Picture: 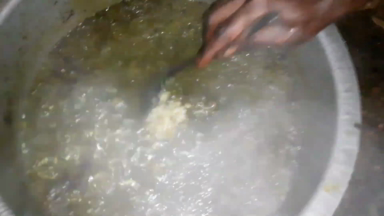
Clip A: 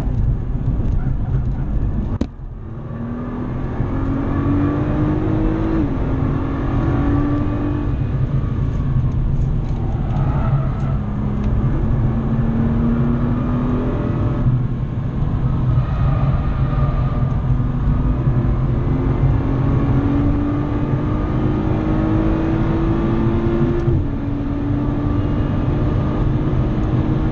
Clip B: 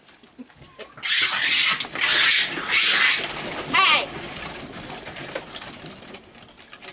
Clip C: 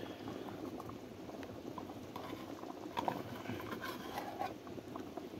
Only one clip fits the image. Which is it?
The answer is C